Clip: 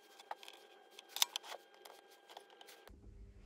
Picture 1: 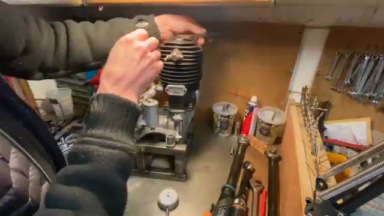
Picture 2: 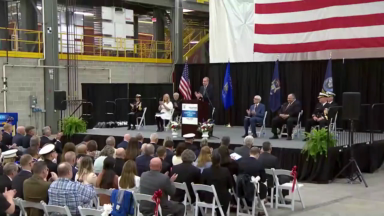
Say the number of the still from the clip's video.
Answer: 1